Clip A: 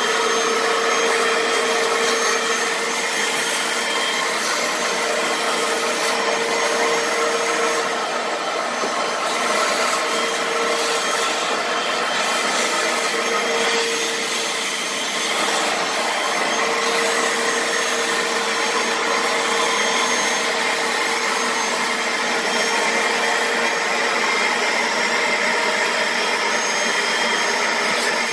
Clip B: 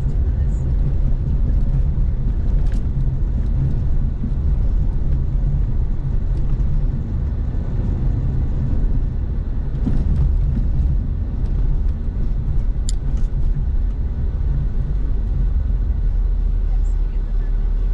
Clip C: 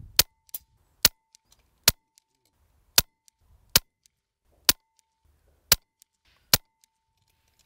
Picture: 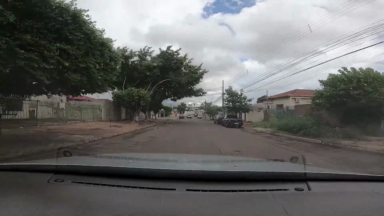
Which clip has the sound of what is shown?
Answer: B